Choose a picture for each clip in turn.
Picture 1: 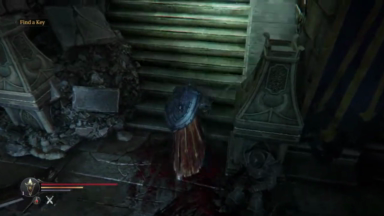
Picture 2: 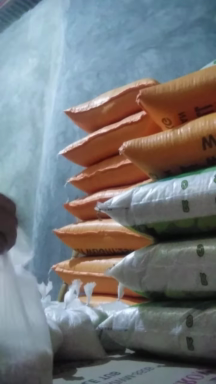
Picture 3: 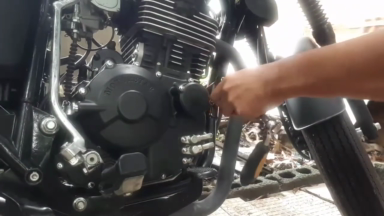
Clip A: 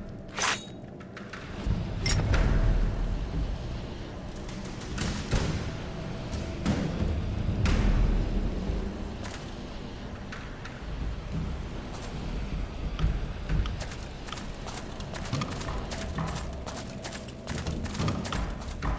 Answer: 1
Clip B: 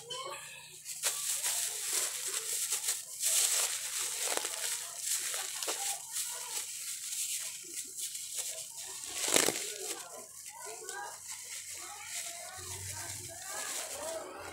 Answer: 2